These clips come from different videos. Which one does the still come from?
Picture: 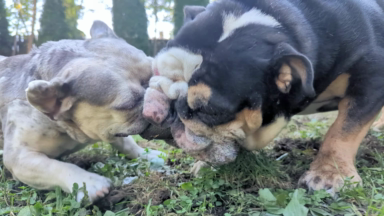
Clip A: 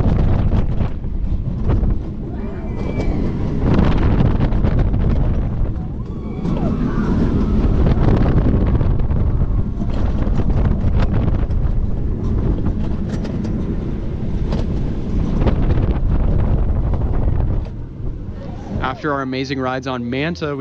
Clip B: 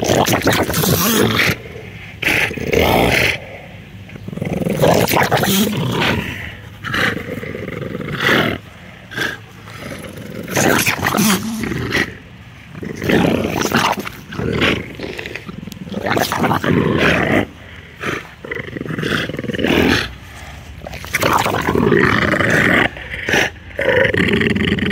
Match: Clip B